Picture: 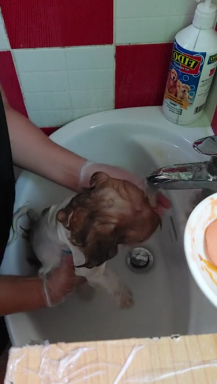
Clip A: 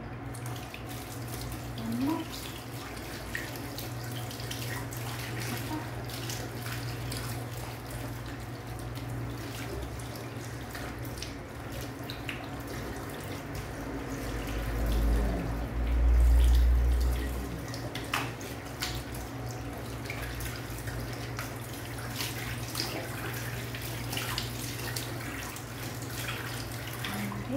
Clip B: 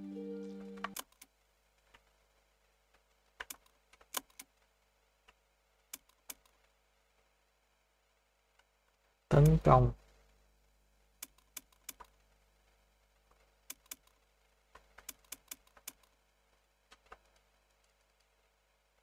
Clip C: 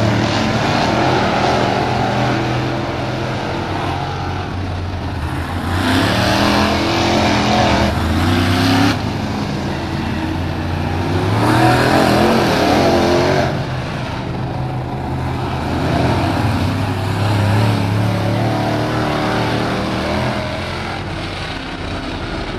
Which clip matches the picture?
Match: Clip A